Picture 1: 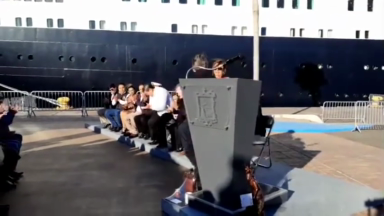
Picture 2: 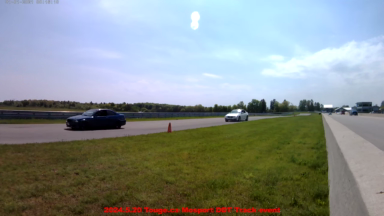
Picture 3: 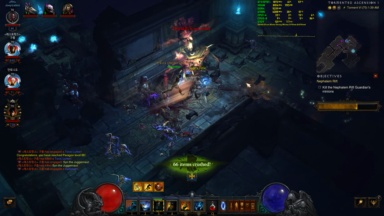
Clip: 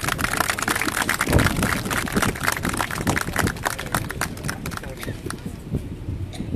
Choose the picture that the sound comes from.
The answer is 1